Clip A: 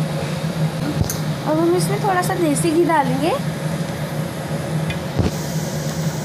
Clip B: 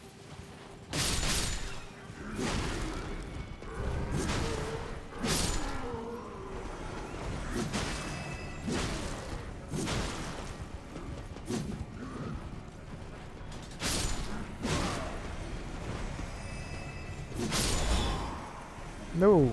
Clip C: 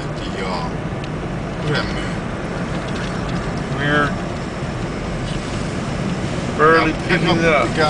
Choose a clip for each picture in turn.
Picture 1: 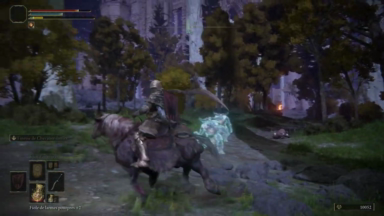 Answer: B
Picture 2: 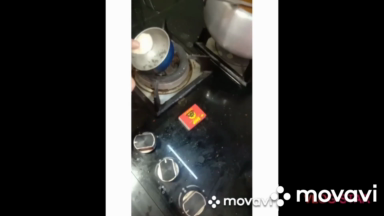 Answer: A